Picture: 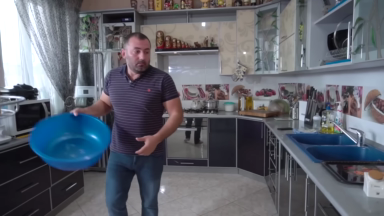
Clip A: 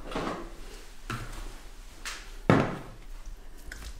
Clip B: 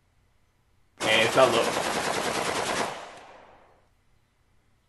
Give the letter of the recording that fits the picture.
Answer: A